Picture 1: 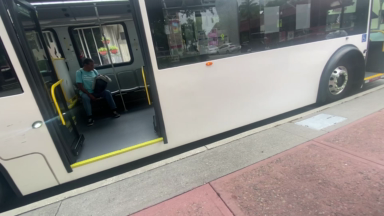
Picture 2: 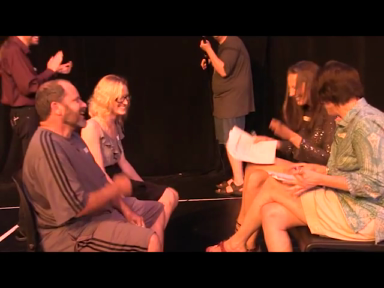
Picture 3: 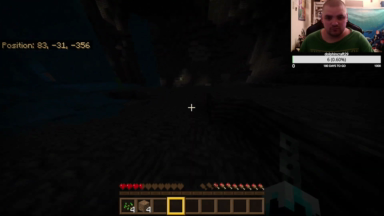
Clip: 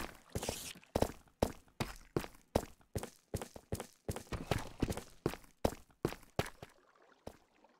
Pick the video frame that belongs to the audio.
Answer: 3